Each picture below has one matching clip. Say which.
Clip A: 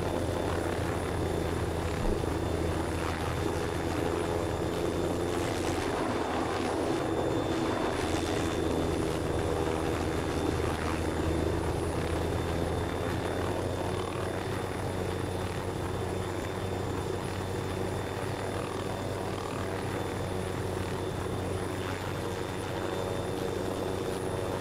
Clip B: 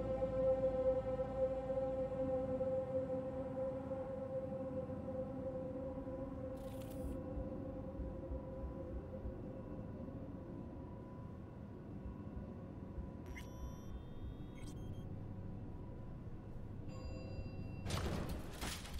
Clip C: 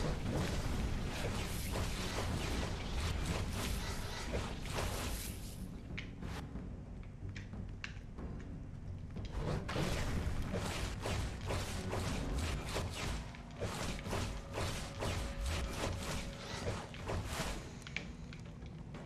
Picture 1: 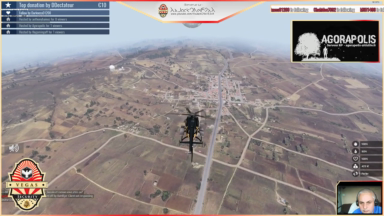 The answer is A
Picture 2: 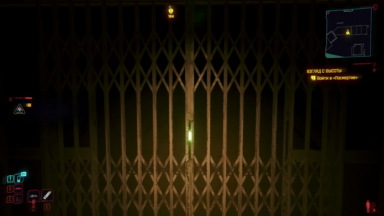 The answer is B